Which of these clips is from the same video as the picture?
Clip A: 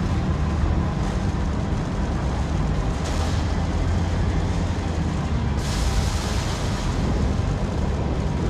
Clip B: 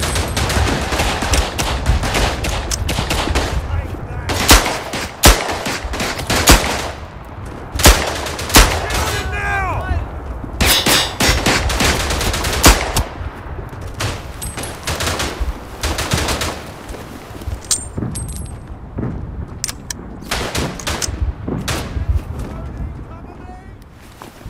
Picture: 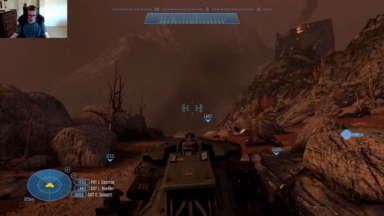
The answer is A